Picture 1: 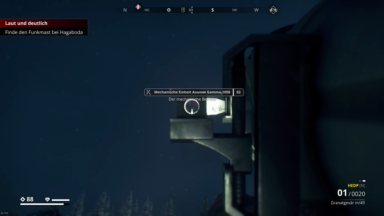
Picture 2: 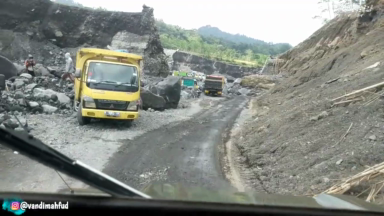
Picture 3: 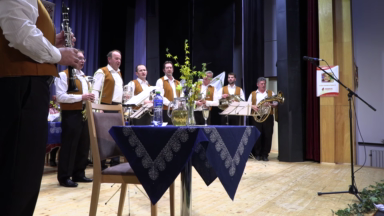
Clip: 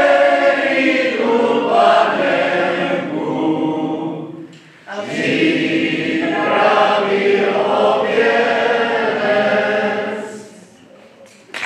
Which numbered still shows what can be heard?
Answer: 3